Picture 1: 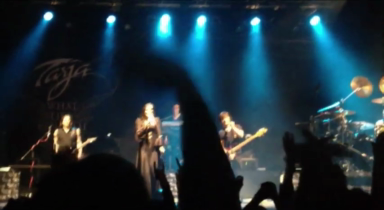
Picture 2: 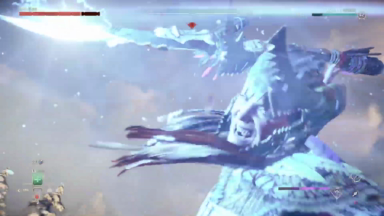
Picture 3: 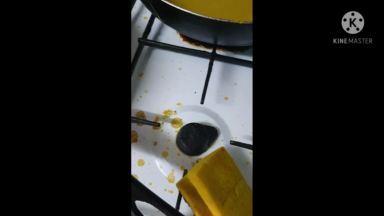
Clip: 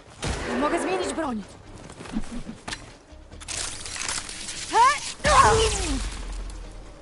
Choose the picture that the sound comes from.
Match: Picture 2